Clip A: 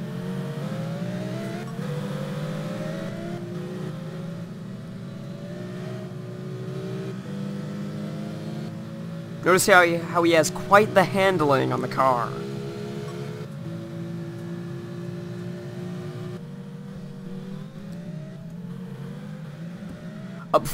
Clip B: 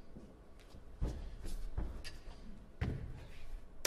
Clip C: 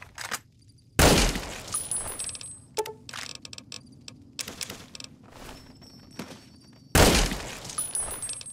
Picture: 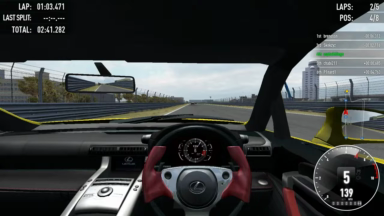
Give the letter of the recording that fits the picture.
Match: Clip A